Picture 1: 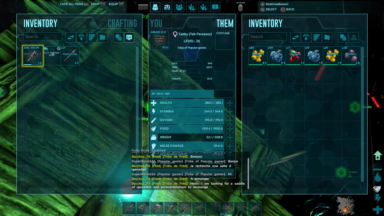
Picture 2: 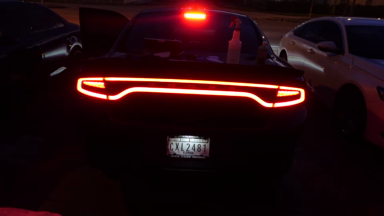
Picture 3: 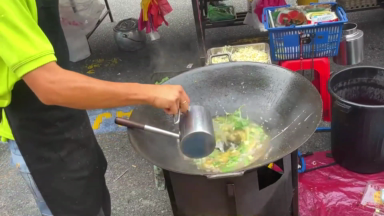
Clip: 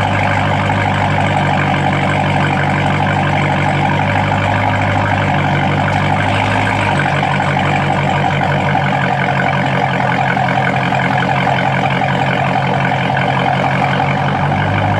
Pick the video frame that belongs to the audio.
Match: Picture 2